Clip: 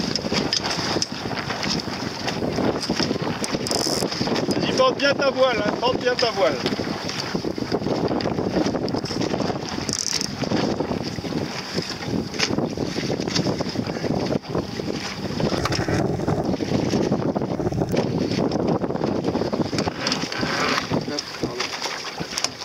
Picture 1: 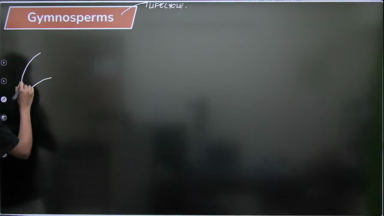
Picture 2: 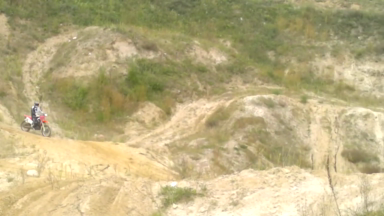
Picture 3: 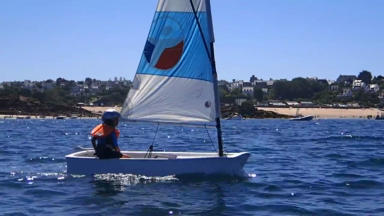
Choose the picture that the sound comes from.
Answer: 3